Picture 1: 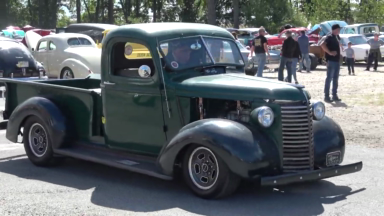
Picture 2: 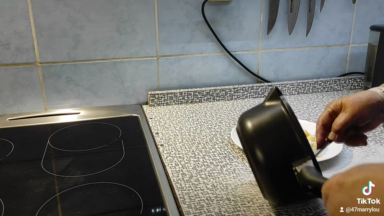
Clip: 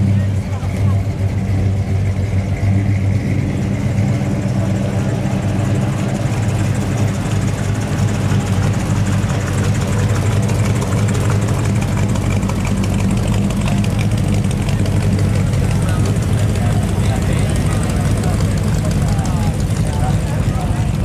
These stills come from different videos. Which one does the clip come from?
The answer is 1